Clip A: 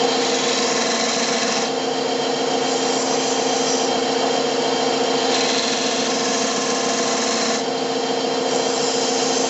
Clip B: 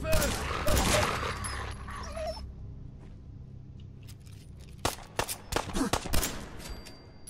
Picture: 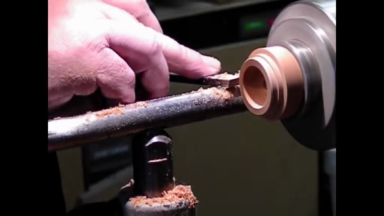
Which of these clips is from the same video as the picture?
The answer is A